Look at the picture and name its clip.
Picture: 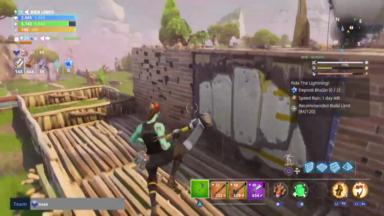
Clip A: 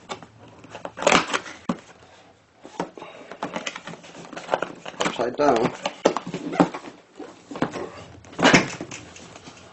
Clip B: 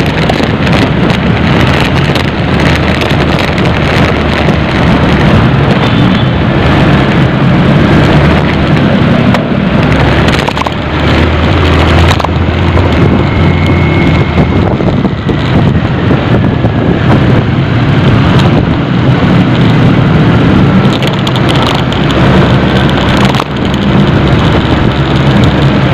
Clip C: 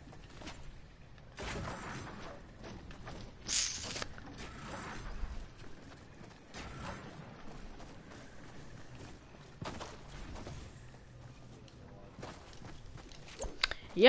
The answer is C